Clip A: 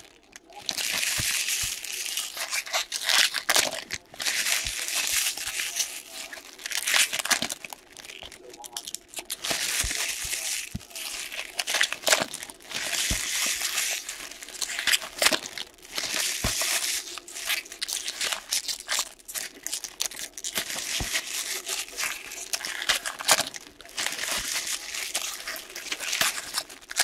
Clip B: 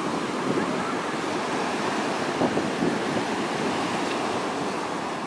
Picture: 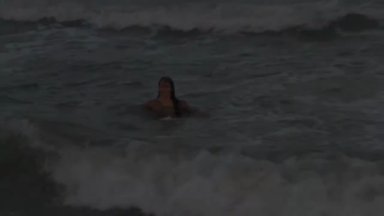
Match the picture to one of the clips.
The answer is B